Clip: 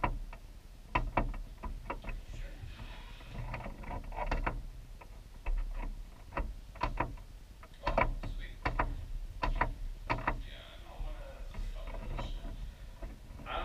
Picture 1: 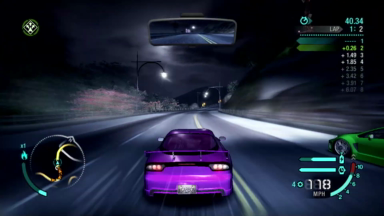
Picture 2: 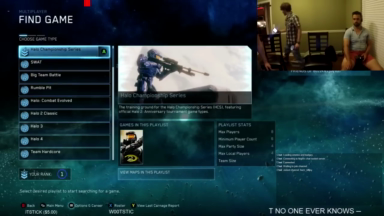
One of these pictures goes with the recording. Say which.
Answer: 2